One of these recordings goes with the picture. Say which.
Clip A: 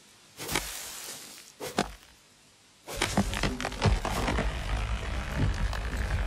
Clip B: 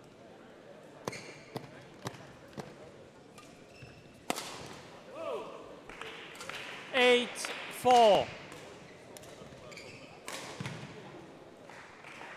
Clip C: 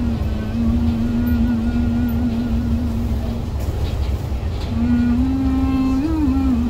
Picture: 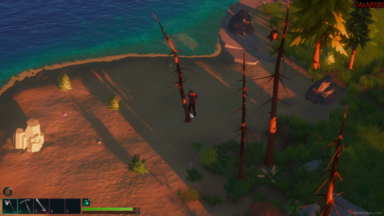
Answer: A